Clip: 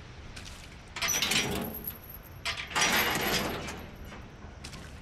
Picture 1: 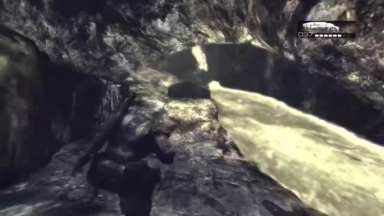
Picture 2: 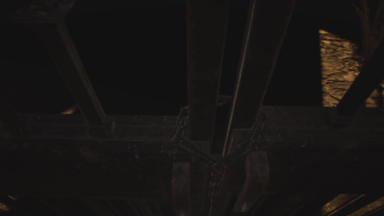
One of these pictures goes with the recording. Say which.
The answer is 2